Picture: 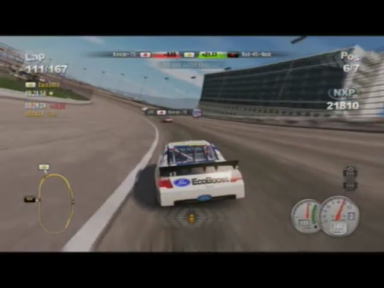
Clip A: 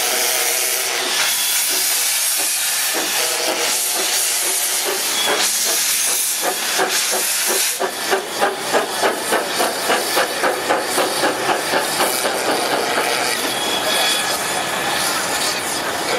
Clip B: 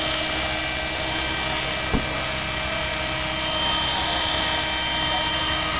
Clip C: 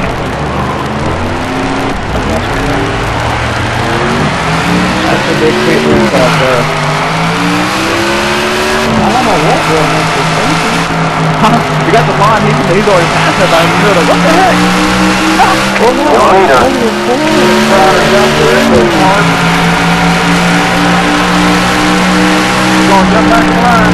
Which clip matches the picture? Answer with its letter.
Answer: C